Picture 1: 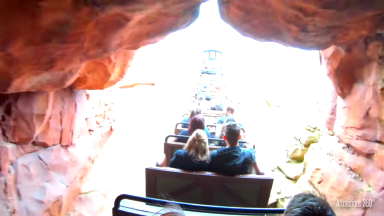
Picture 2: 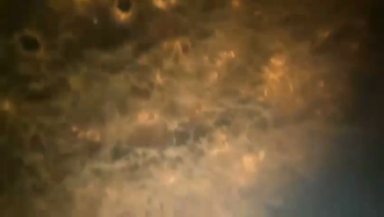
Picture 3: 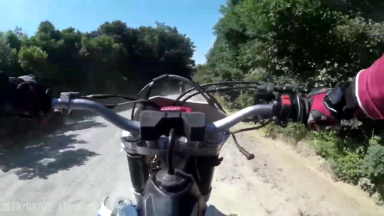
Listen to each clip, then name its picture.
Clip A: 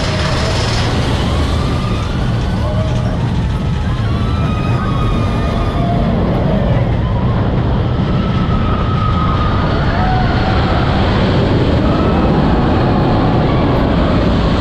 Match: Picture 1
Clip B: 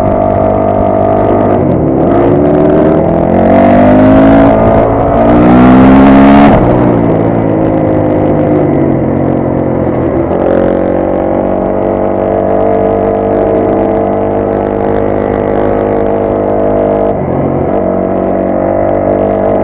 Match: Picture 3